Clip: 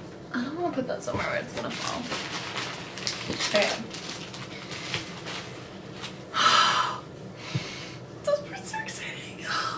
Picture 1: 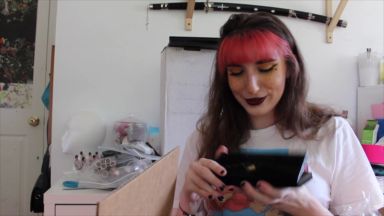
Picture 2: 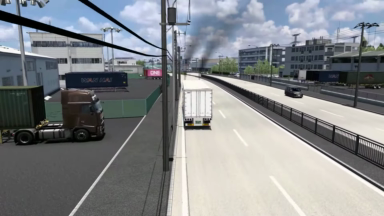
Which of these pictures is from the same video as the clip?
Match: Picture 1